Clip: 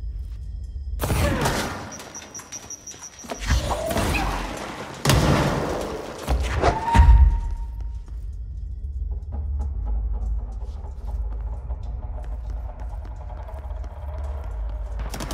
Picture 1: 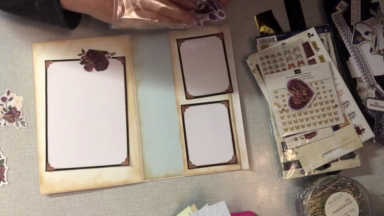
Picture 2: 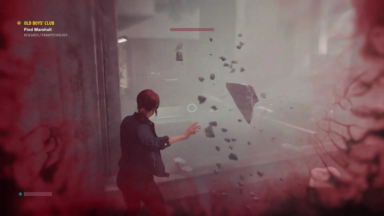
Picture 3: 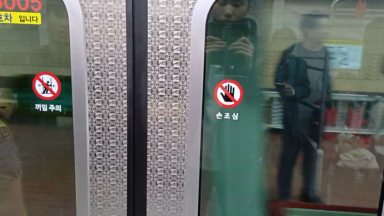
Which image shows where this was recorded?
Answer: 2